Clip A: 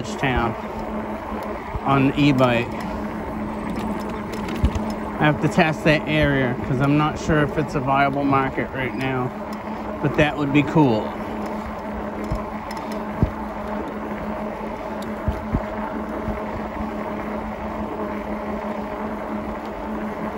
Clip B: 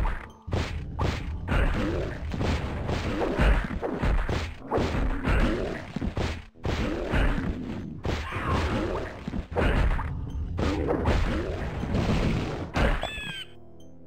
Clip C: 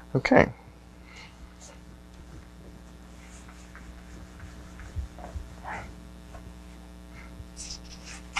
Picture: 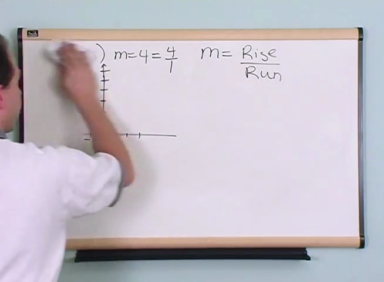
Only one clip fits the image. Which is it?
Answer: C